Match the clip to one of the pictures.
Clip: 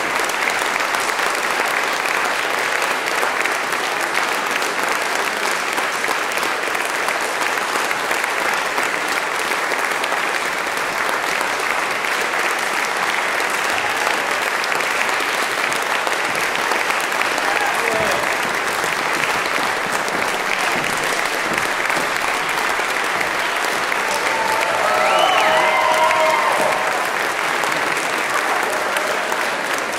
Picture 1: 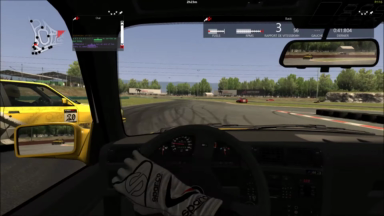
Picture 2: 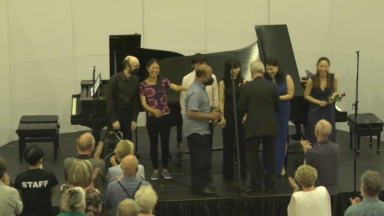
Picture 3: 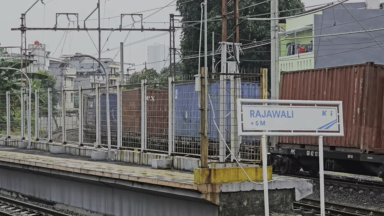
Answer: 2